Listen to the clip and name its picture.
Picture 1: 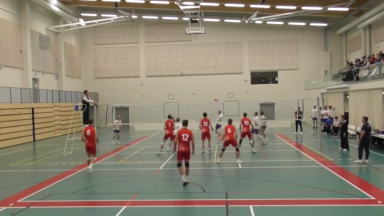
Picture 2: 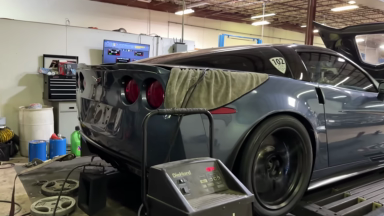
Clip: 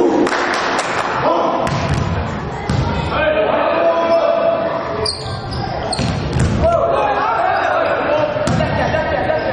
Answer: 1